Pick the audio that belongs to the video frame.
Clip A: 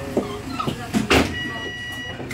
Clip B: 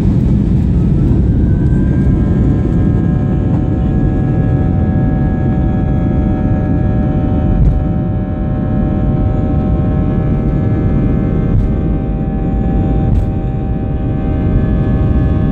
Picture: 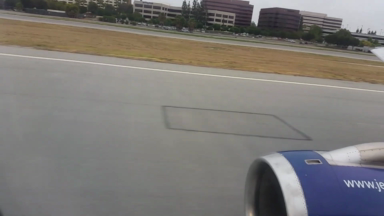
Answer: B